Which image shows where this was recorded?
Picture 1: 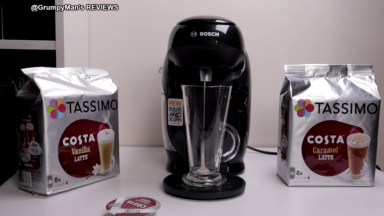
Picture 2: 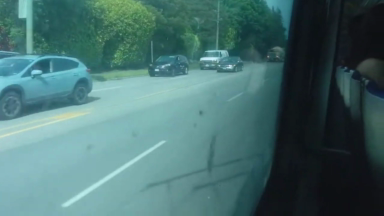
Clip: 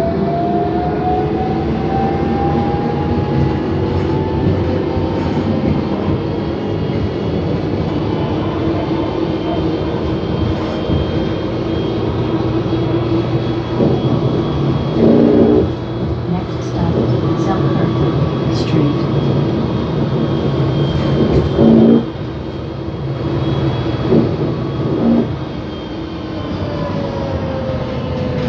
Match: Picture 2